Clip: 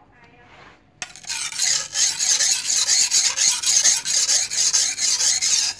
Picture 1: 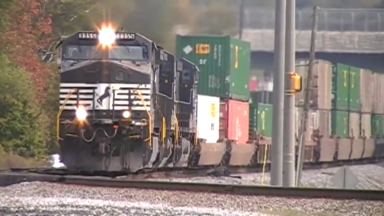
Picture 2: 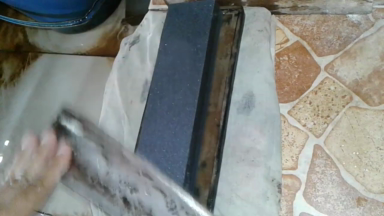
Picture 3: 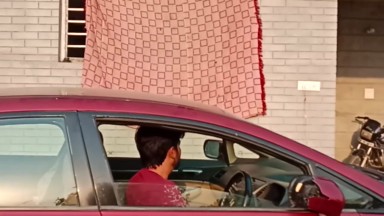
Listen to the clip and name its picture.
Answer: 2